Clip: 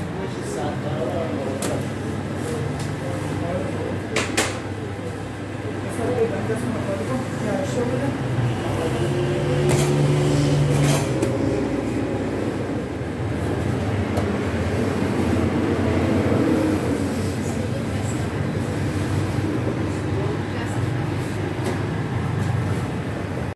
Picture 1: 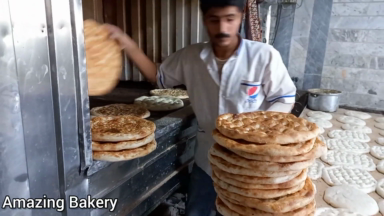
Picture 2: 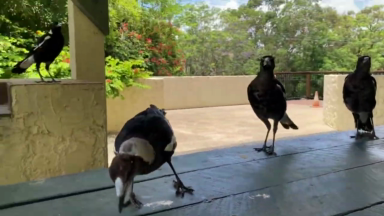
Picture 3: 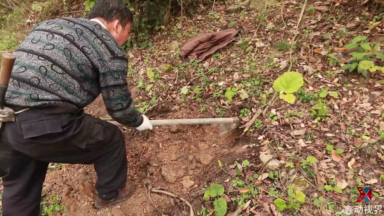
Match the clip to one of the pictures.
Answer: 1